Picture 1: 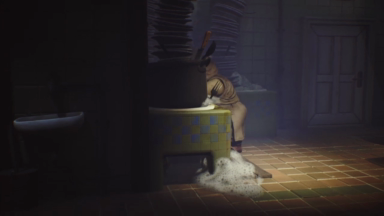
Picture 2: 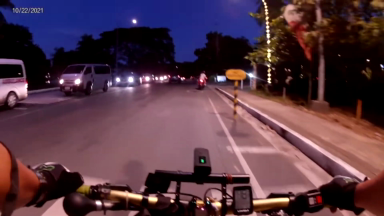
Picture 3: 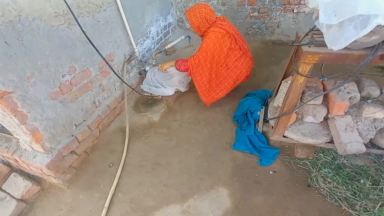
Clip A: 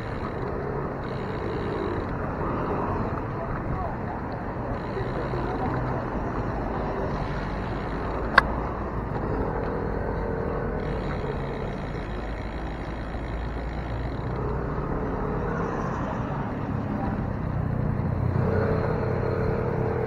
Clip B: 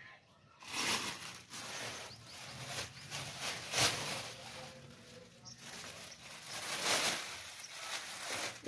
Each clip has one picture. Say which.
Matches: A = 2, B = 3